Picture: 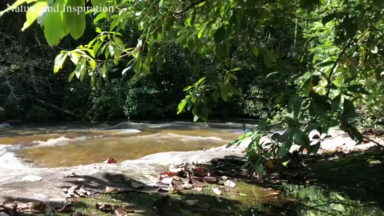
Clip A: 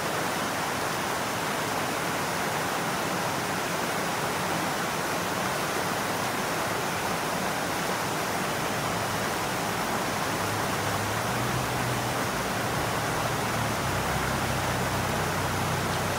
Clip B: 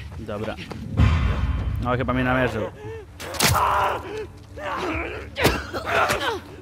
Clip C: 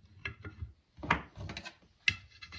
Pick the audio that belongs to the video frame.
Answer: A